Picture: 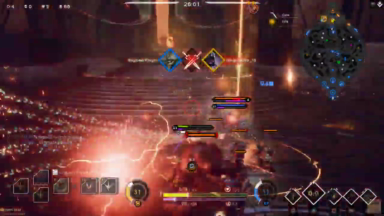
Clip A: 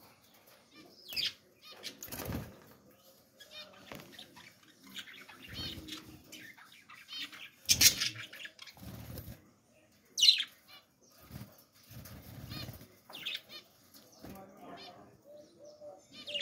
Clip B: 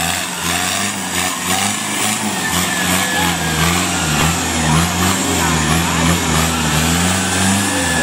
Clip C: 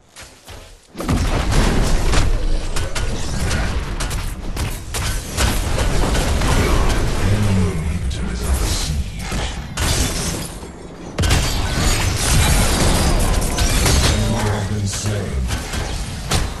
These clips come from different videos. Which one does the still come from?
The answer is C